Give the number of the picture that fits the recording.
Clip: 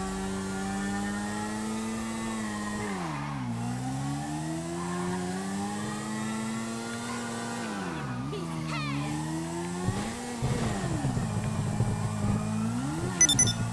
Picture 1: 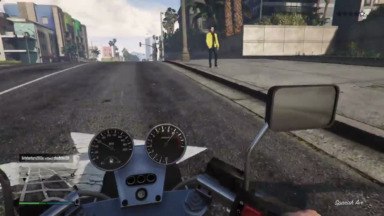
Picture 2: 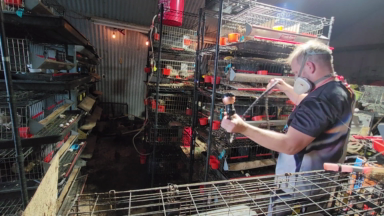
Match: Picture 1